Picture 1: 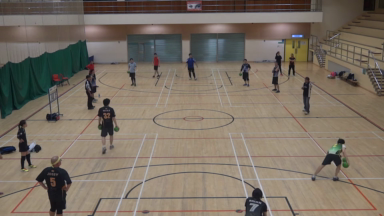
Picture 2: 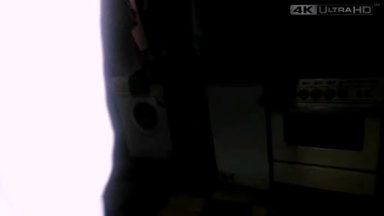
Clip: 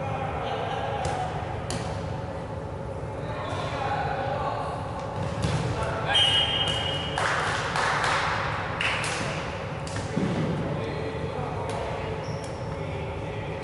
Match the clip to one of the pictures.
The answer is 1